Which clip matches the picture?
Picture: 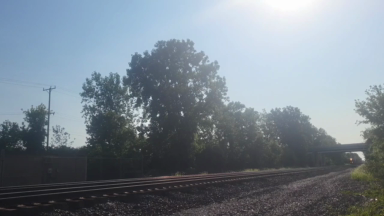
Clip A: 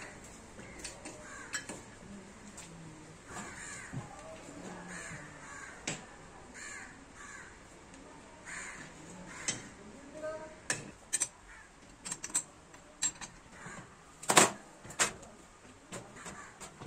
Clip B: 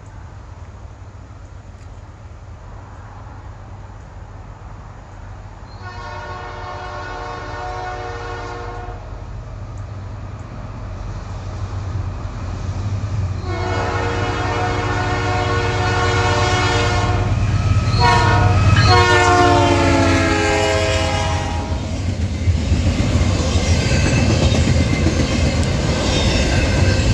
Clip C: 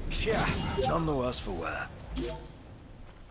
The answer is B